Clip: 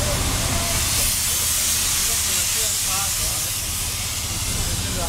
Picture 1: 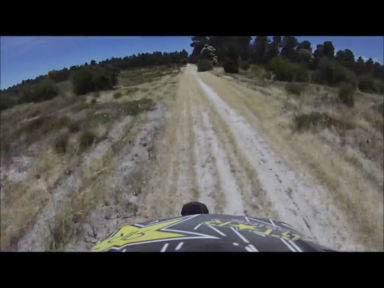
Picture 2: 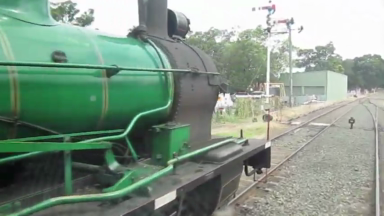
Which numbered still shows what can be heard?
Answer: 2